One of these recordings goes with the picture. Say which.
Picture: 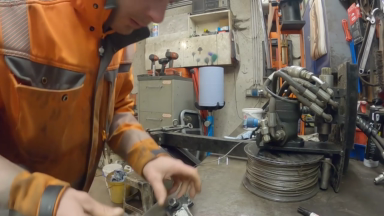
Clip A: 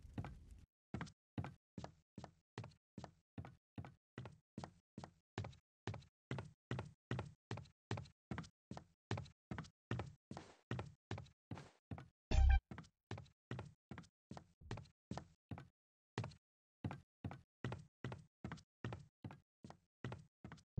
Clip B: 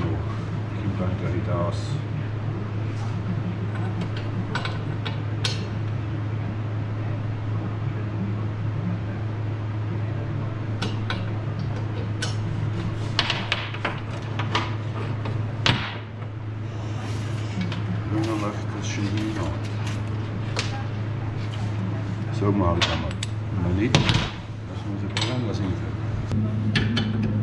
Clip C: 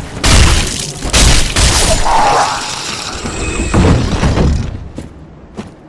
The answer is B